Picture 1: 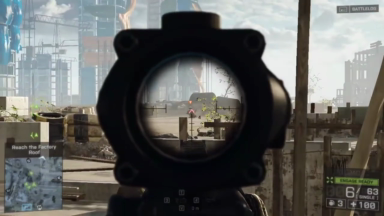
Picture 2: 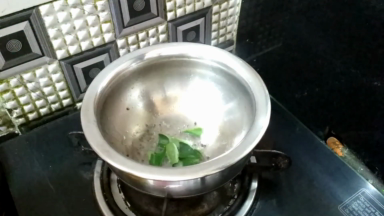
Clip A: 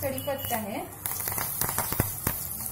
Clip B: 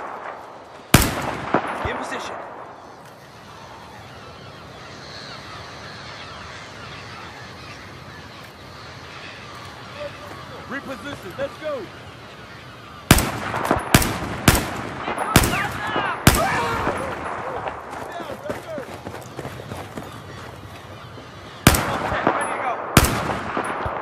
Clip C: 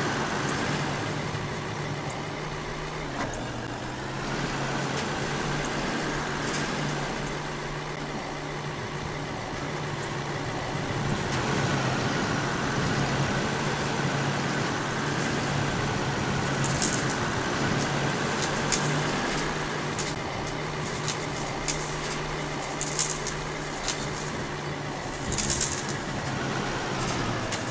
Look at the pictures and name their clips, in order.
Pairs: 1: B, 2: A